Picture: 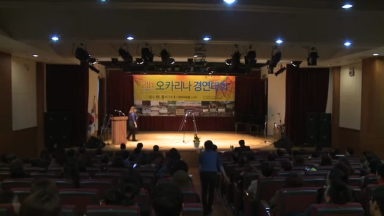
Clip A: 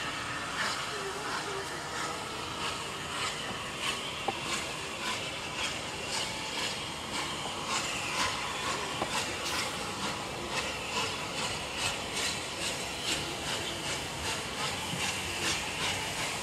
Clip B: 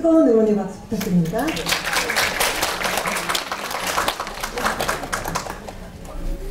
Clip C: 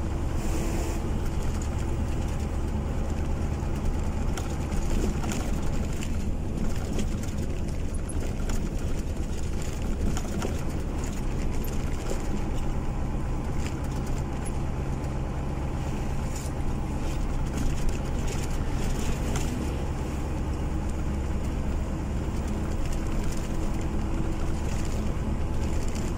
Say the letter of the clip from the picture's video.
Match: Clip B